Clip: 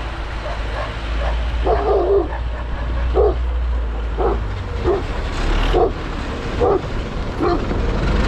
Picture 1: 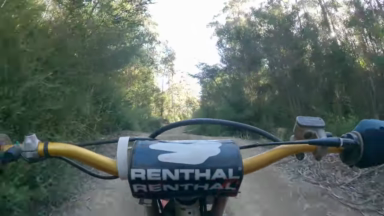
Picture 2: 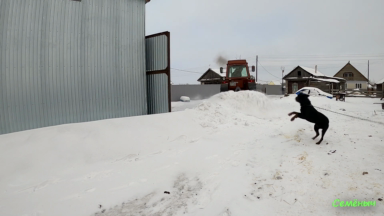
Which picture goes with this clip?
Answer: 2